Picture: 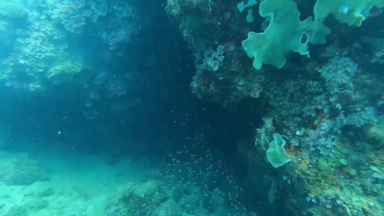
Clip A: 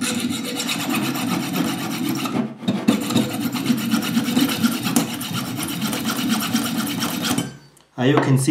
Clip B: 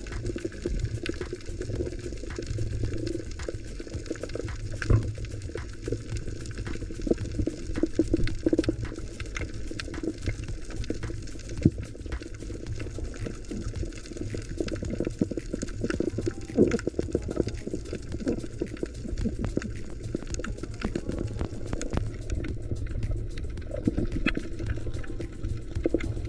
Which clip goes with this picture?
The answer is B